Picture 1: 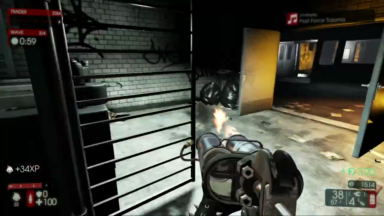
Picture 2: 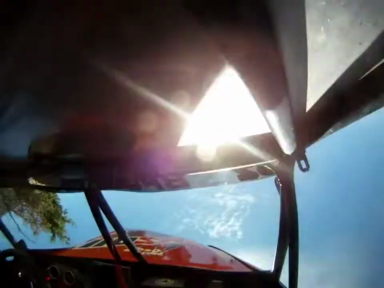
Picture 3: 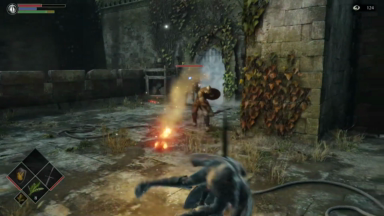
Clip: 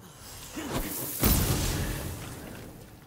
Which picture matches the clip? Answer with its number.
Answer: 3